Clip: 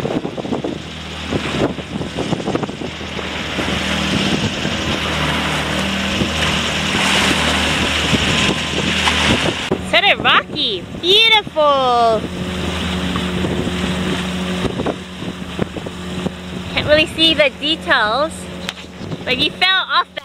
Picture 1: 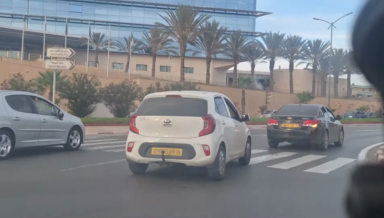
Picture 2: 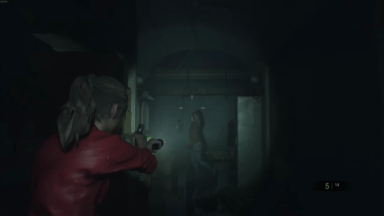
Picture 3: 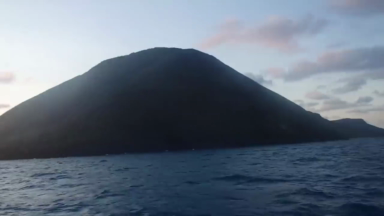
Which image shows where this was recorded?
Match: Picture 3